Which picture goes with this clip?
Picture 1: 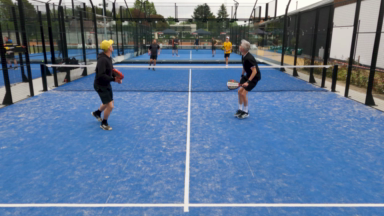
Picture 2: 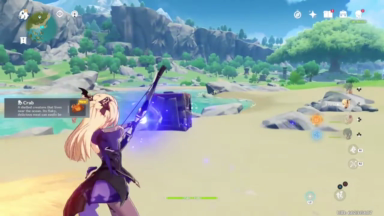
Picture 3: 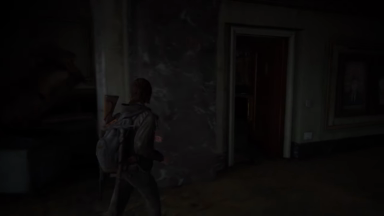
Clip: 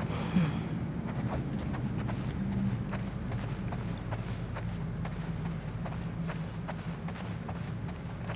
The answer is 3